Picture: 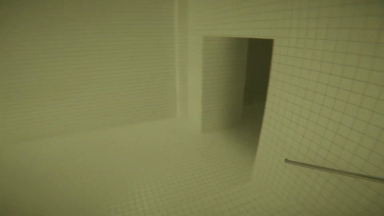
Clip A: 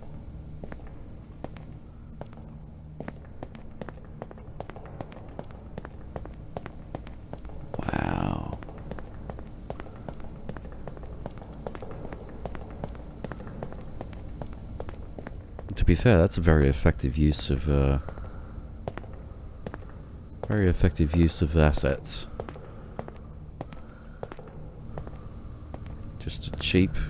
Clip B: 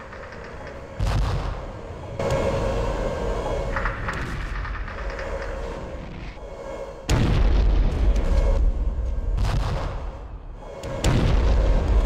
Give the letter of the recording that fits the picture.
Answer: A